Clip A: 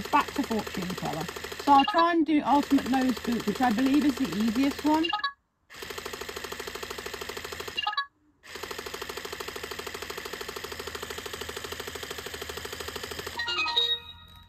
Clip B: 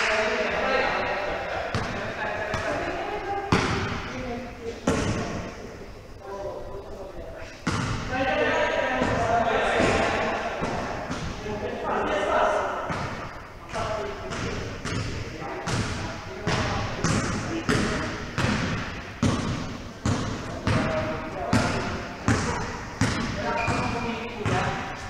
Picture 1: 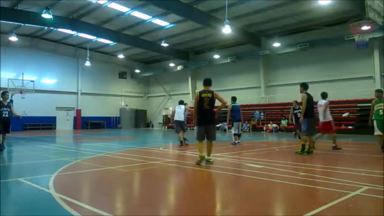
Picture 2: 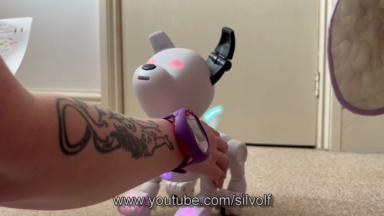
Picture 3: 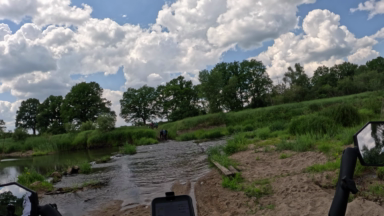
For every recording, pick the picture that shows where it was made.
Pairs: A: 2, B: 1